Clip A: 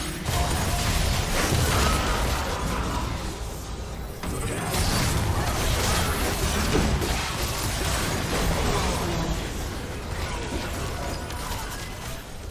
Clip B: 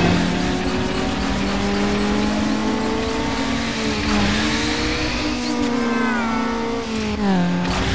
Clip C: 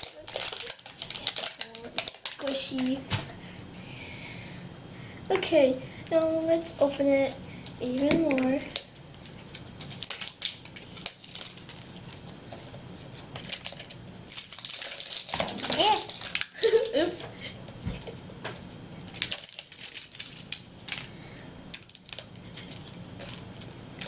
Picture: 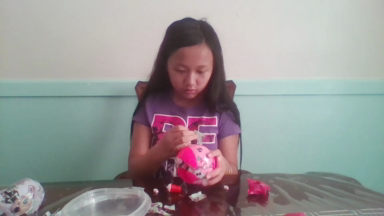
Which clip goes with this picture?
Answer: C